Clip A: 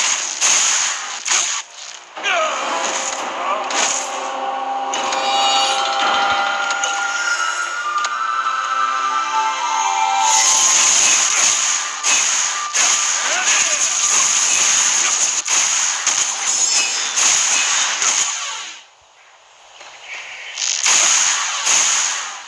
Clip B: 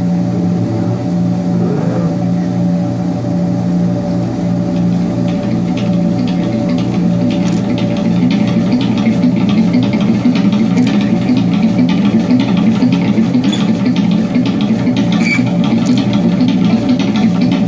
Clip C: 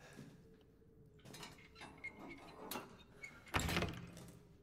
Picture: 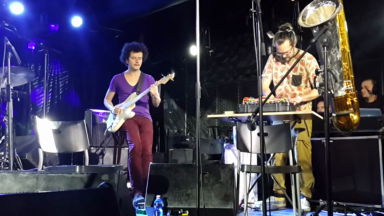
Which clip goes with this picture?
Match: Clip B